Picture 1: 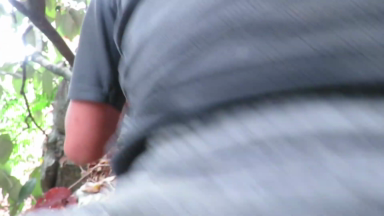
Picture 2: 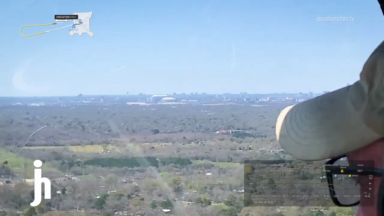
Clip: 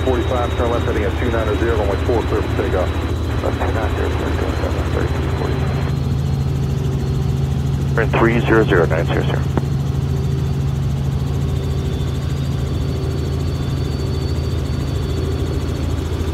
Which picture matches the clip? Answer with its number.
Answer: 2